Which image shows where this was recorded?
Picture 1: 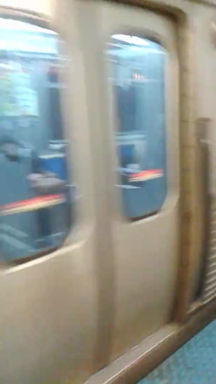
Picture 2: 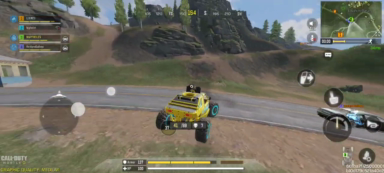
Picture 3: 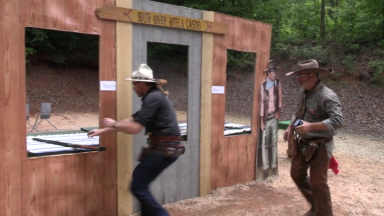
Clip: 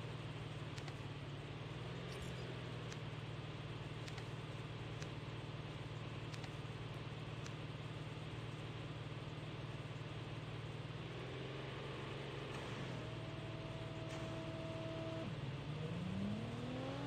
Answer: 2